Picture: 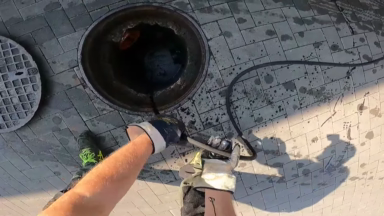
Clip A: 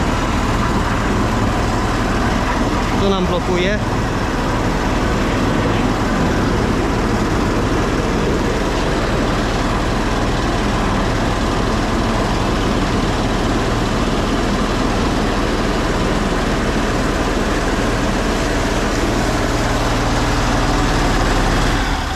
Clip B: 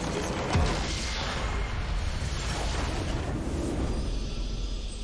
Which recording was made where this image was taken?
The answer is A